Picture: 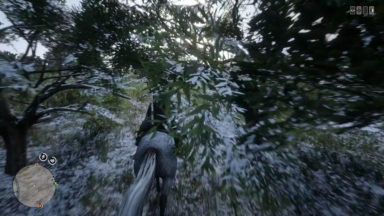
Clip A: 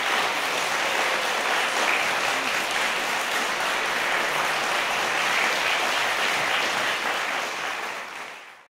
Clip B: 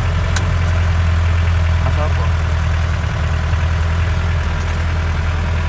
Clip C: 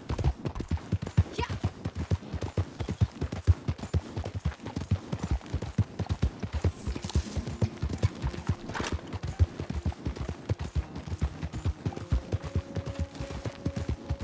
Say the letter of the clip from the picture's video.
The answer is C